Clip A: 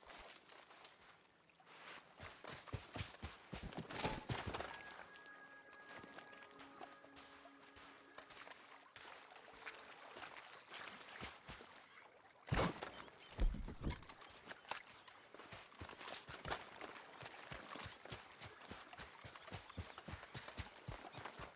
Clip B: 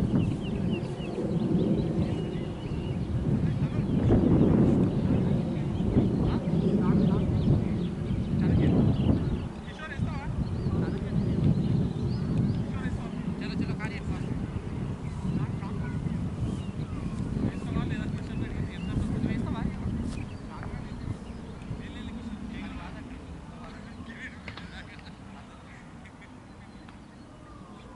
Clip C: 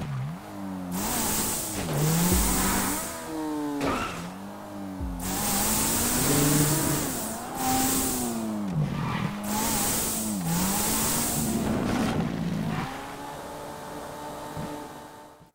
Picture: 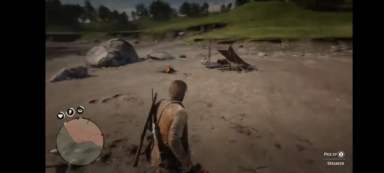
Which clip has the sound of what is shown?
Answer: A